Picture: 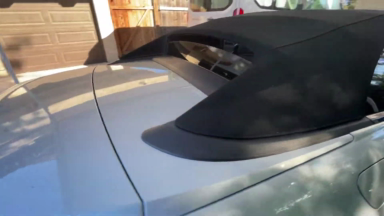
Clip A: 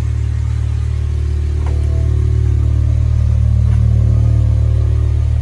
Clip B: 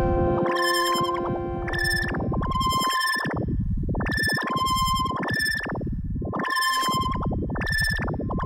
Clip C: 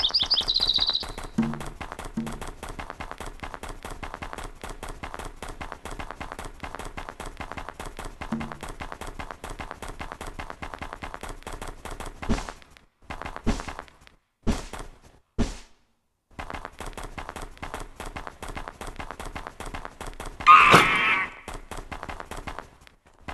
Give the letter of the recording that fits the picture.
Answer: A